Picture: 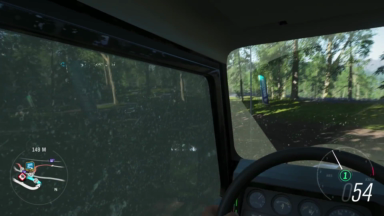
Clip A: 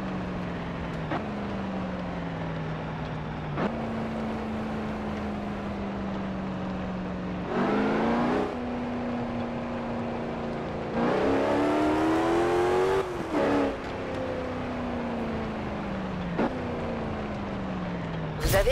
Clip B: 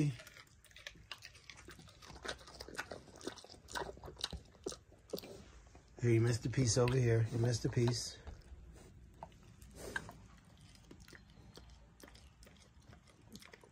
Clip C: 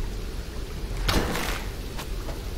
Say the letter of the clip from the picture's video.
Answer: A